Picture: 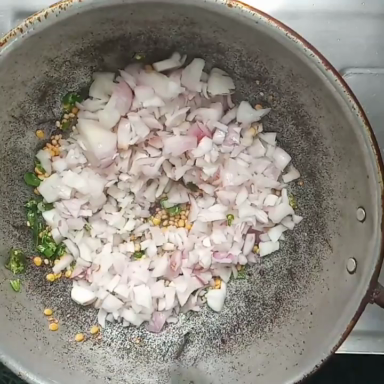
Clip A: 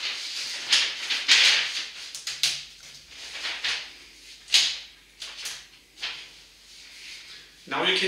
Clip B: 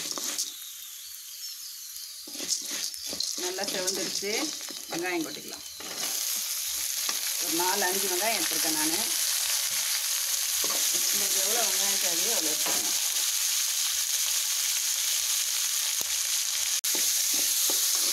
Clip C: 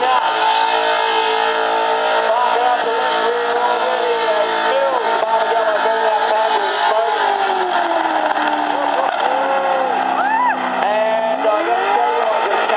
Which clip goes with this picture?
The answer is B